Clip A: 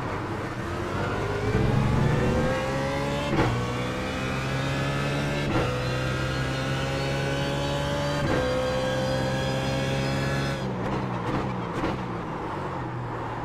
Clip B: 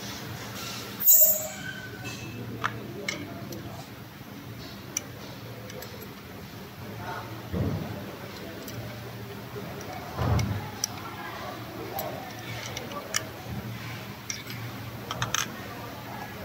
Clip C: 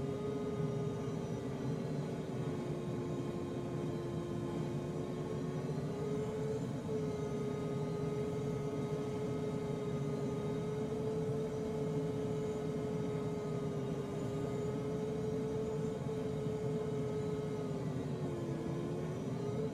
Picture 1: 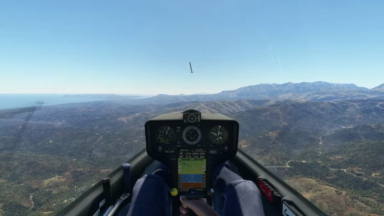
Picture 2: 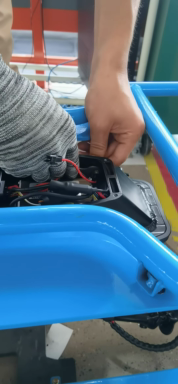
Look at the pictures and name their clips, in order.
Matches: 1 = C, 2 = B